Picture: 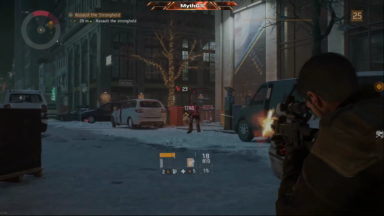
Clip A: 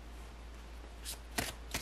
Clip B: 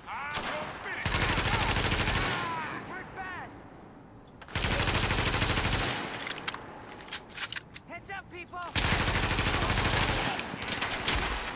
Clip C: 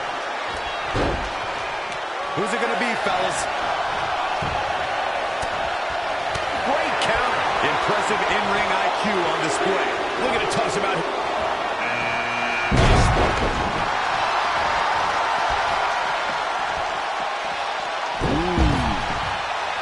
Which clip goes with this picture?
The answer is B